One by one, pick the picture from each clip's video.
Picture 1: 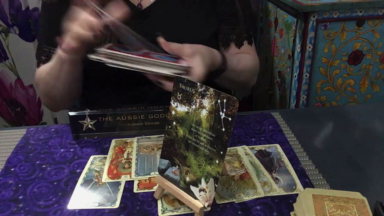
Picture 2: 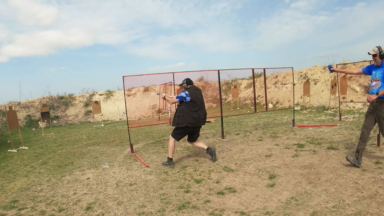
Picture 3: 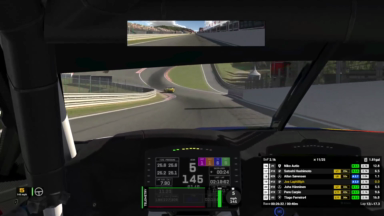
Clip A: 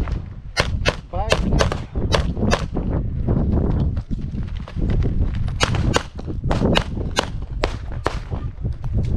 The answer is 2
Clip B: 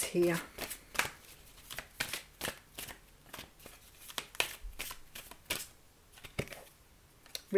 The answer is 1